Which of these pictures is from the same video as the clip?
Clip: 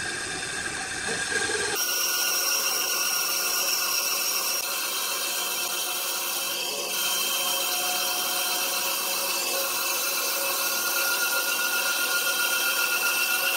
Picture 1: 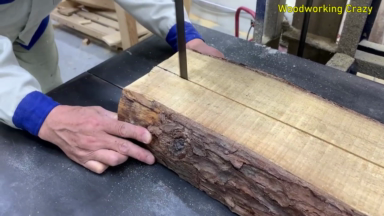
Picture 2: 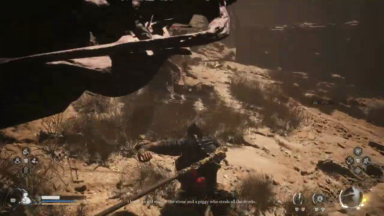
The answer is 1